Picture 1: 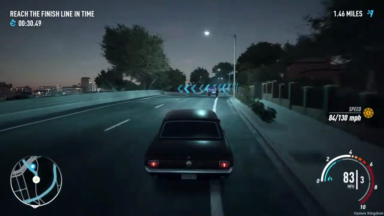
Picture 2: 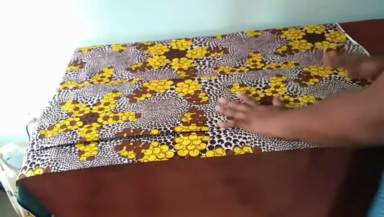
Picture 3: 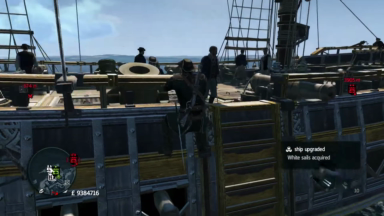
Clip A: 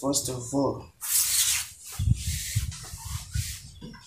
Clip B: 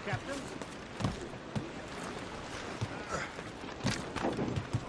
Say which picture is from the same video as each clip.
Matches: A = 2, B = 3